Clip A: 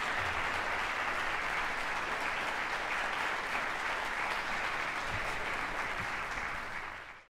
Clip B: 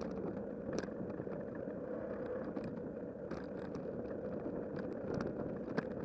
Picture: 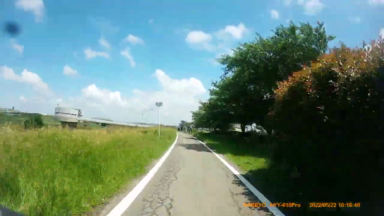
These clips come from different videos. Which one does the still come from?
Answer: B